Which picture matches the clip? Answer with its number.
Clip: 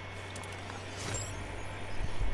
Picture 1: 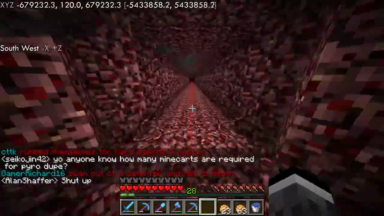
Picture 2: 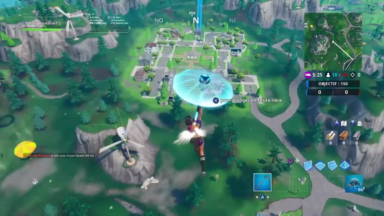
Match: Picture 2